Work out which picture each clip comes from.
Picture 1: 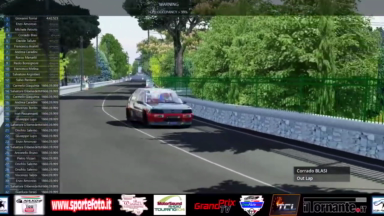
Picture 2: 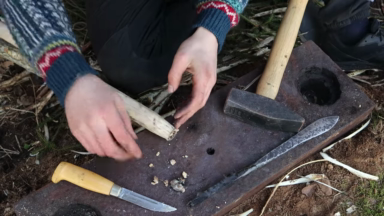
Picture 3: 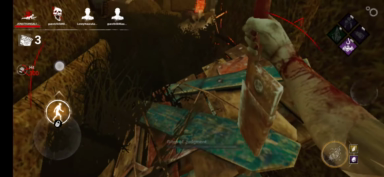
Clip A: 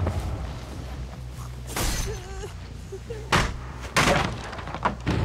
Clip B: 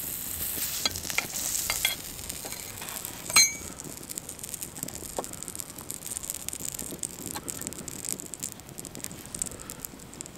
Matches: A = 3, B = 2